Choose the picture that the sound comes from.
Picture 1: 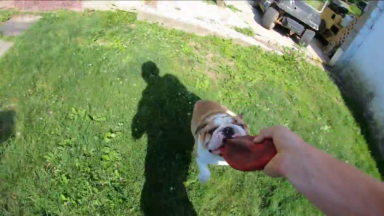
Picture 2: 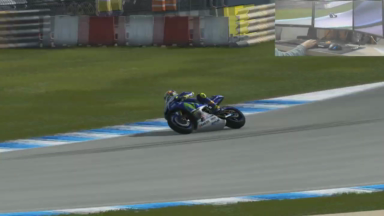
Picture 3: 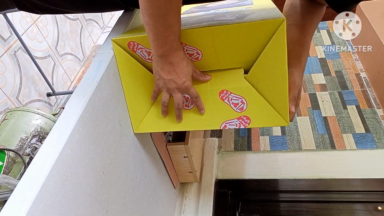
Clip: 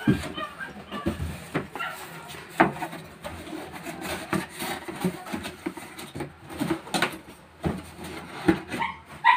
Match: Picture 3